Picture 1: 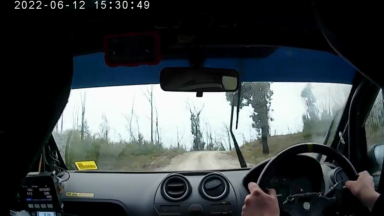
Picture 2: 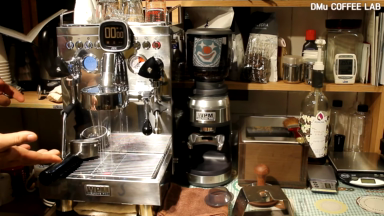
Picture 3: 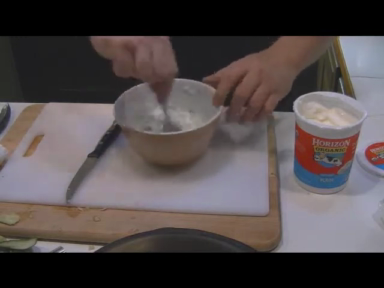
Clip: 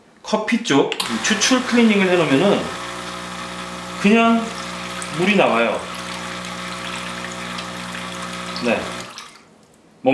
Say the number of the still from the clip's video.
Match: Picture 2